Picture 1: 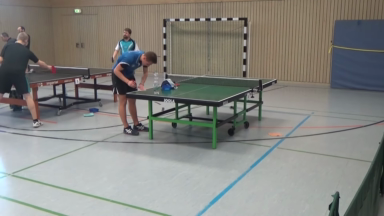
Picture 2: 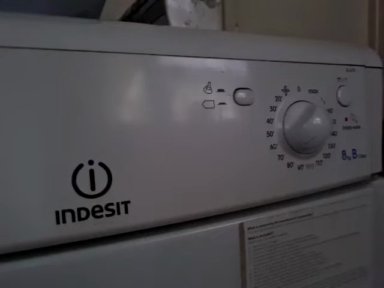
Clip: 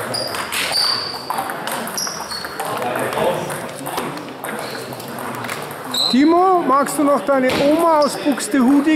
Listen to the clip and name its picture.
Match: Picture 1